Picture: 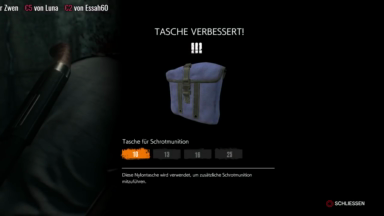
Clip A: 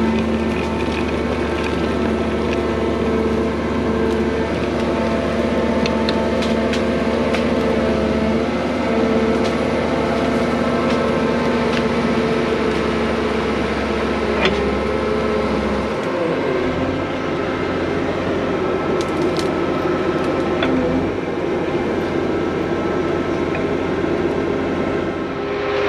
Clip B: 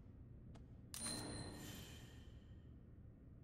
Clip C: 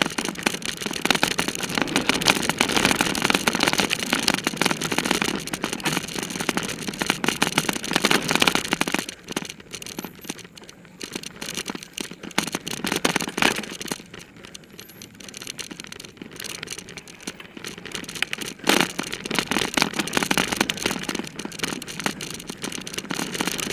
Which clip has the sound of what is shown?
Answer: B